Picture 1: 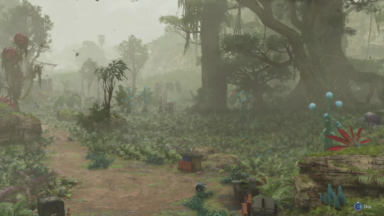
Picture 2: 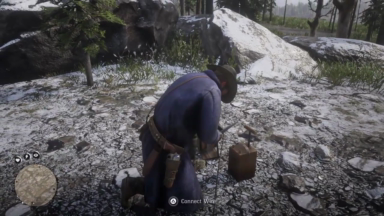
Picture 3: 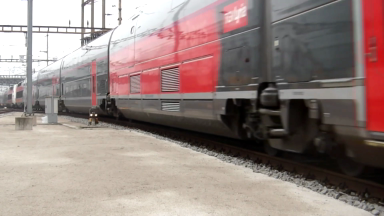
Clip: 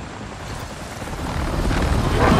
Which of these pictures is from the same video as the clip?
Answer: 1